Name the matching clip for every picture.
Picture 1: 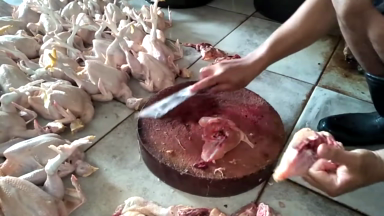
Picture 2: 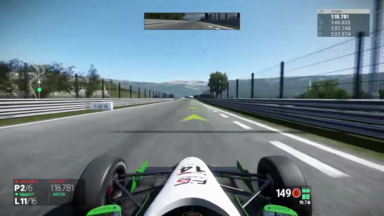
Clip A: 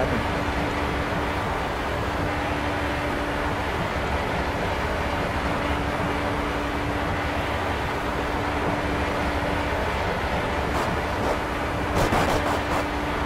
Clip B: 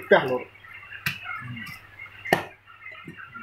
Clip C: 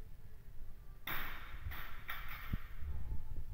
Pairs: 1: B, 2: A